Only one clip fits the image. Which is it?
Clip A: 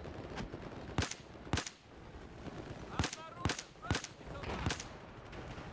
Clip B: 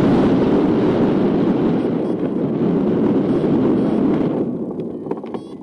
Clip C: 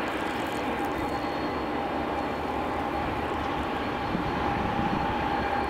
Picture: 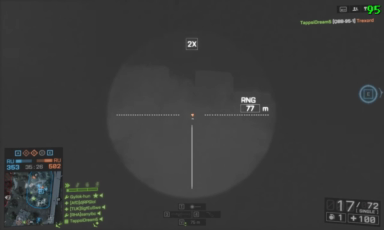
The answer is A